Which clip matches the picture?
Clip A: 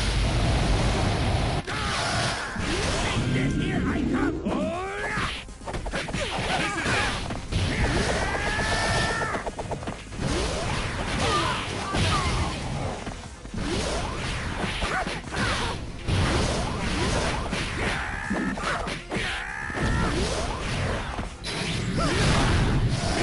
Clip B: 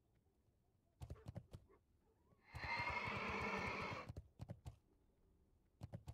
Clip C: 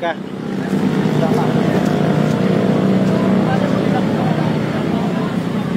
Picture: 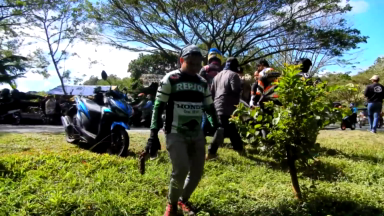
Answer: C